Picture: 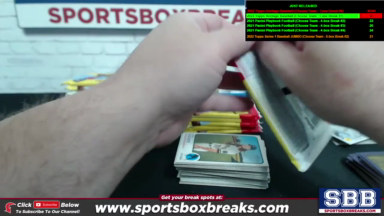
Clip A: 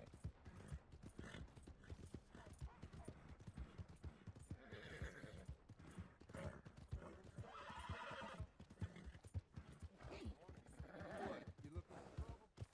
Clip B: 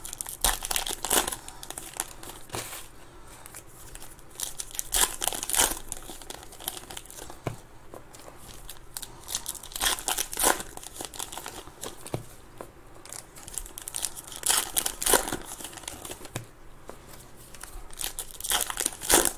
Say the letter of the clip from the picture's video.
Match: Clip B